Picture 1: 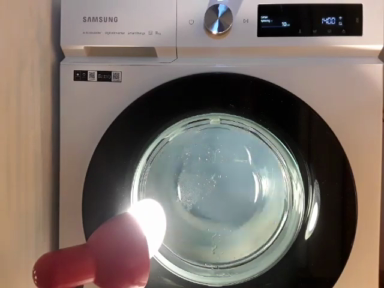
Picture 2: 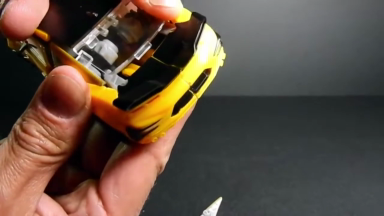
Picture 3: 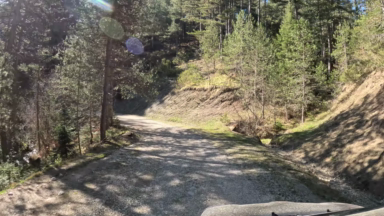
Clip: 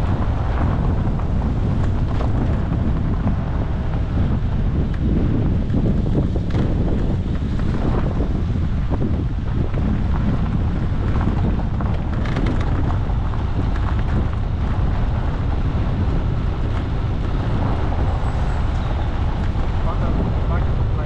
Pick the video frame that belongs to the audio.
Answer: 3